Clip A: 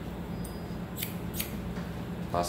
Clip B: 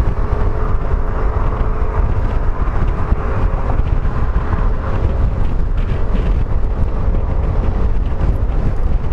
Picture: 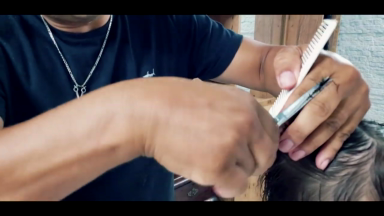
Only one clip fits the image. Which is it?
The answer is A